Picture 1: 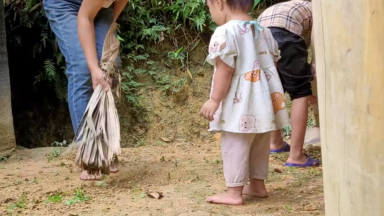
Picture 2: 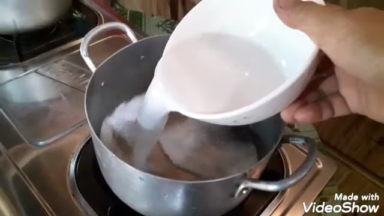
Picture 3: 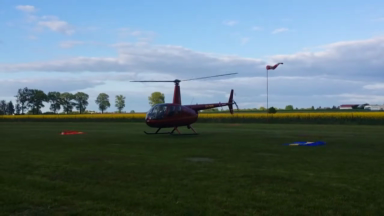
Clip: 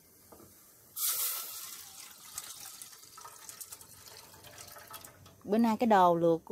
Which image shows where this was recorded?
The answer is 2